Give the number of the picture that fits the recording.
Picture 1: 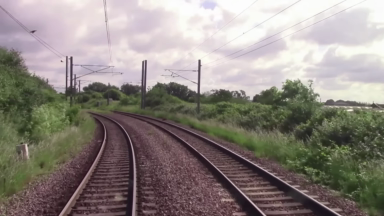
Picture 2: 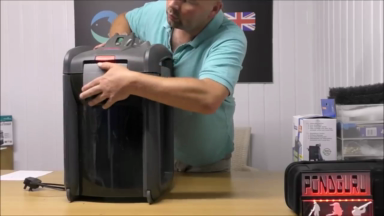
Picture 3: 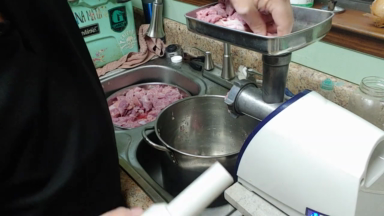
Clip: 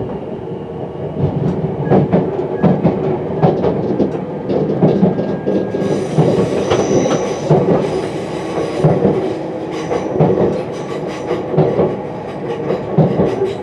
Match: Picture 1